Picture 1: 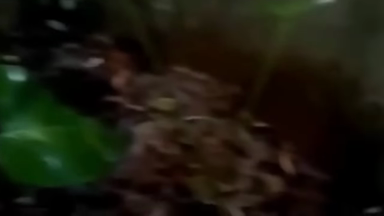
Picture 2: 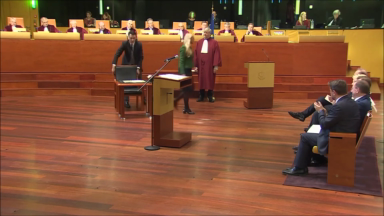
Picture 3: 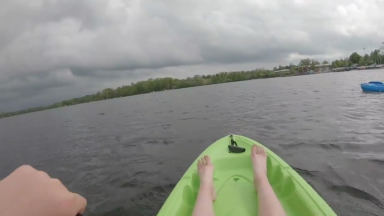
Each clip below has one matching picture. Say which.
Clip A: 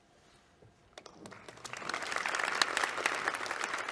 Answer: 2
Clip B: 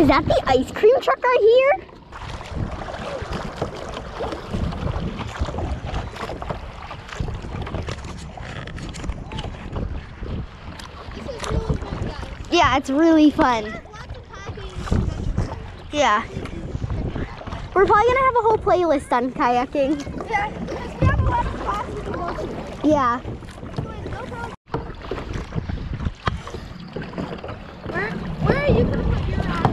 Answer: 3